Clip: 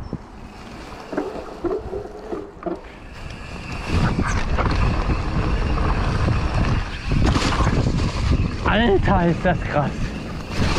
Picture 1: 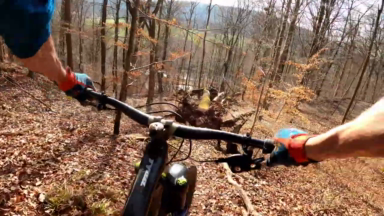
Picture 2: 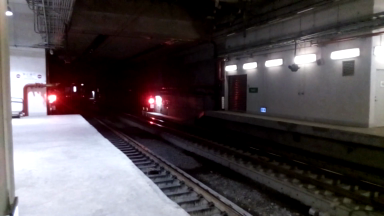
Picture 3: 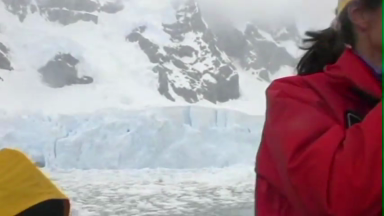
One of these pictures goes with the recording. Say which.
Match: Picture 1